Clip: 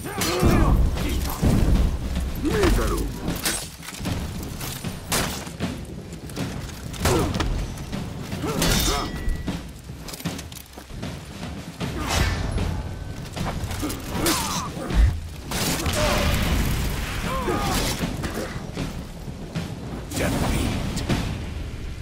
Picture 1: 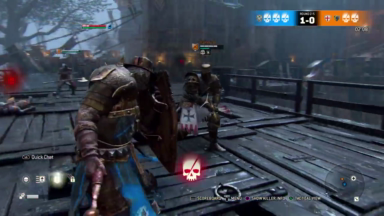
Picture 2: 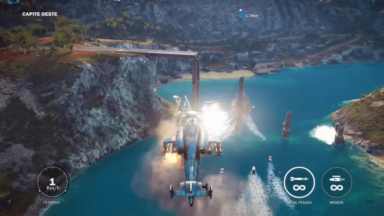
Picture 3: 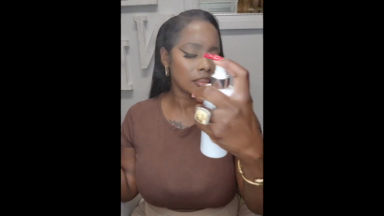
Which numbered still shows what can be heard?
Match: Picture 1